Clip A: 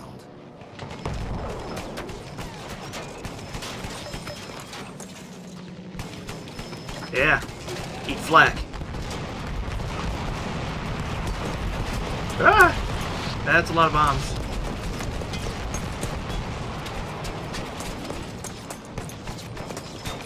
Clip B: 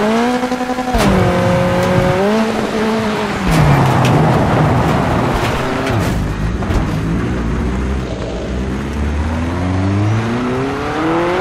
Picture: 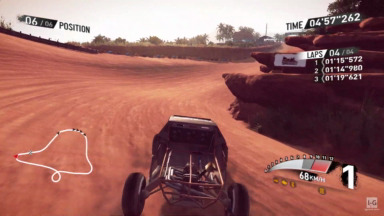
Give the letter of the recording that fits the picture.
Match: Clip B